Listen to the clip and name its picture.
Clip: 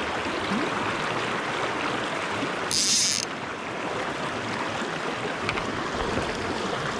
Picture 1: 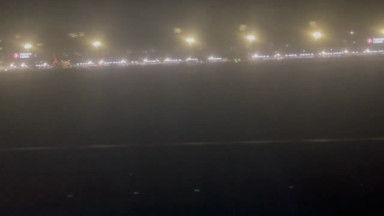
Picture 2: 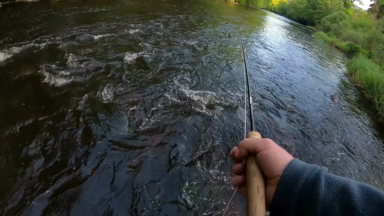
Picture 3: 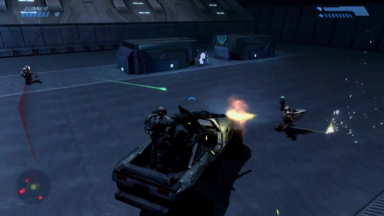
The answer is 2